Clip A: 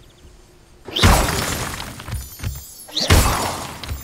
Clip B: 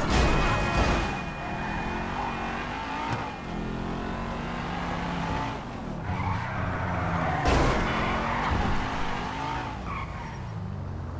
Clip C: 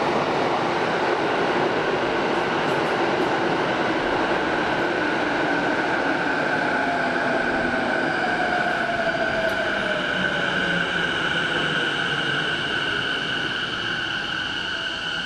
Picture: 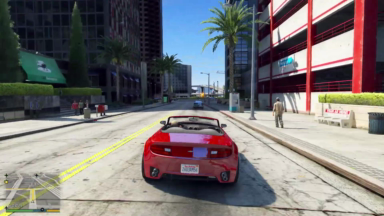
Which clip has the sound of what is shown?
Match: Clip B